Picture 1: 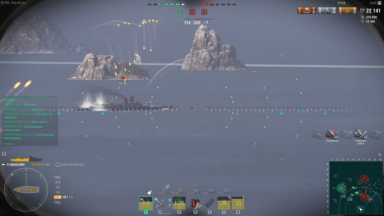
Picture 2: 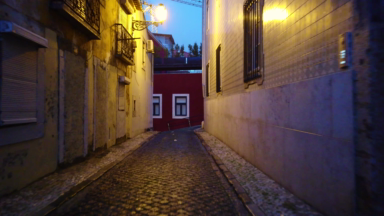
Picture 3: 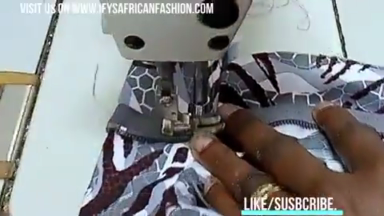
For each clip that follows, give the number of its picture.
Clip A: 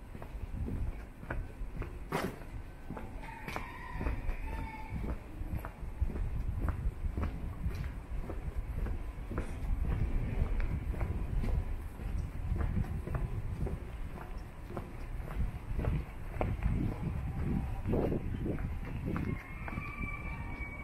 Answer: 2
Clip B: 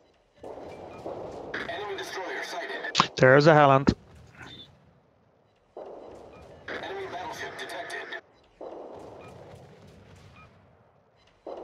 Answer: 1